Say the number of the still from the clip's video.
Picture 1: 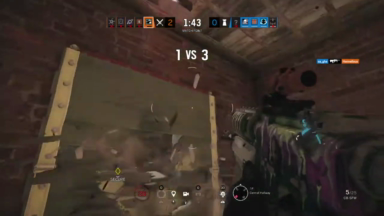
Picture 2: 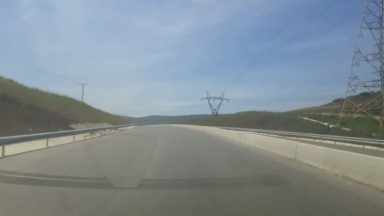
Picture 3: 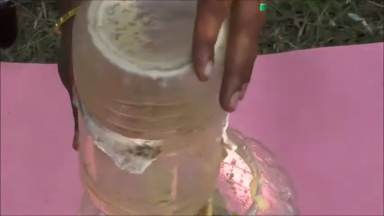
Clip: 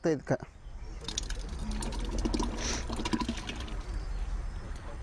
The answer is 3